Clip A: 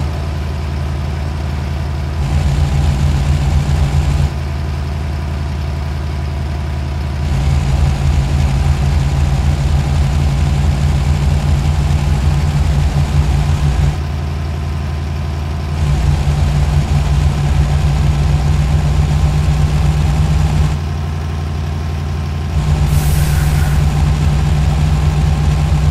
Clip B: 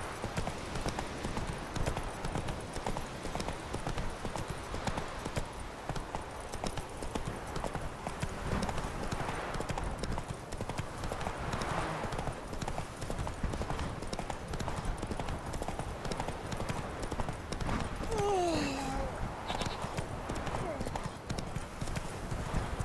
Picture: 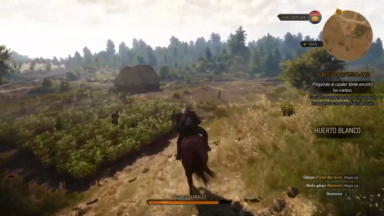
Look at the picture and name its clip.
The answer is B